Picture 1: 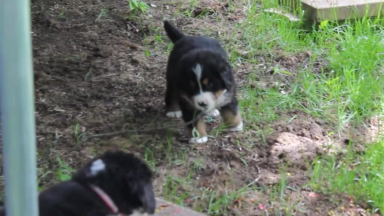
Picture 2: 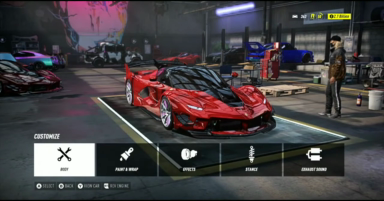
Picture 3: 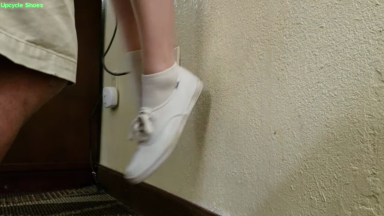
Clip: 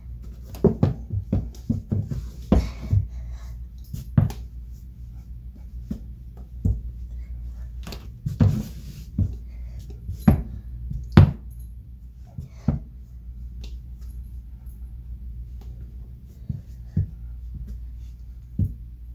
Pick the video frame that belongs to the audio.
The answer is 3